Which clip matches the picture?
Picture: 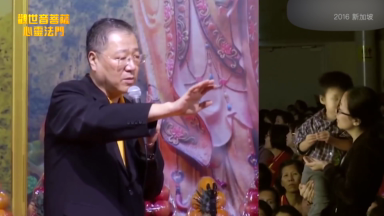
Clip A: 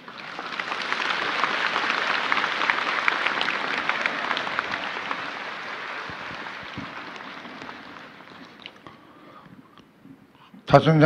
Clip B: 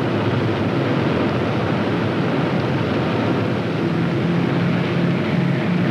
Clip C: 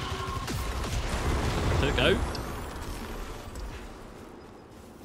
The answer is A